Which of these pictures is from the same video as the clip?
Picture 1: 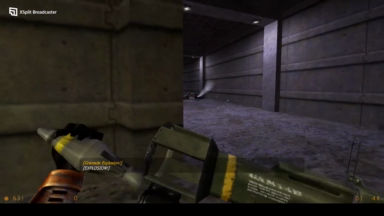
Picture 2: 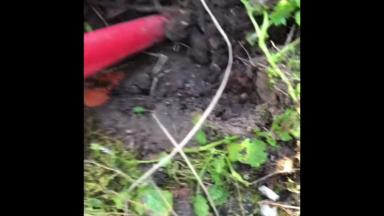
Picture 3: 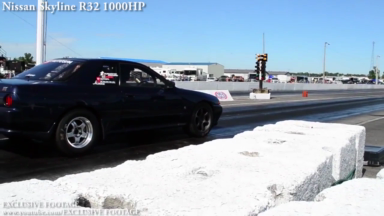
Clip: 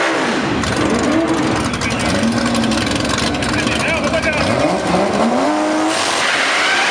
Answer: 3